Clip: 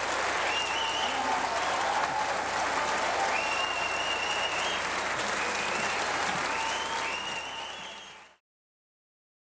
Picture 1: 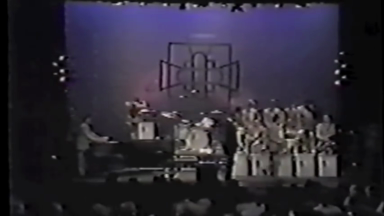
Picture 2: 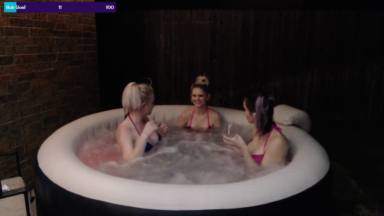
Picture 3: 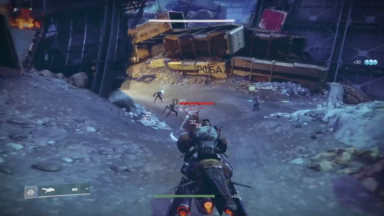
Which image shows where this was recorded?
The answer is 1